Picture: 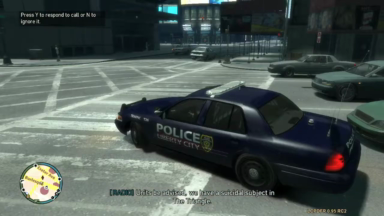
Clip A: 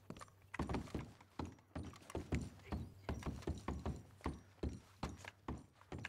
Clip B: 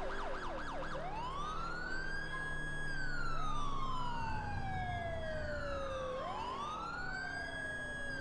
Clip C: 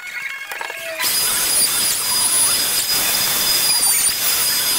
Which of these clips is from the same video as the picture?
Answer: B